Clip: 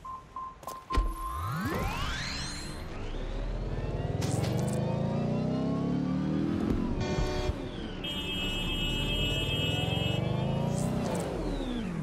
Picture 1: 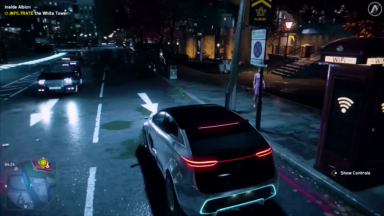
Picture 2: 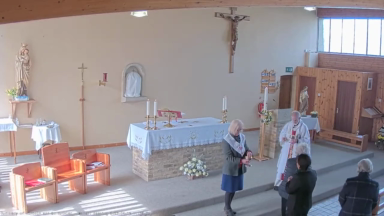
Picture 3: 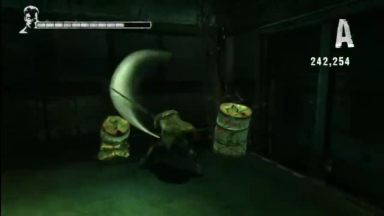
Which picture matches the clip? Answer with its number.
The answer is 1